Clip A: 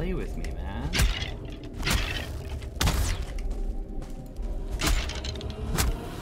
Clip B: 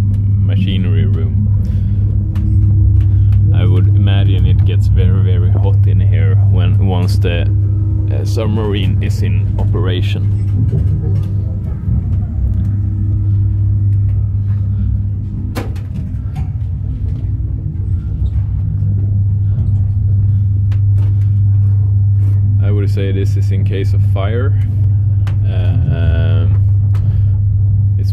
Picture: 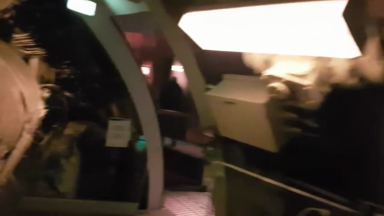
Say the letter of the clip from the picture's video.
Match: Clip B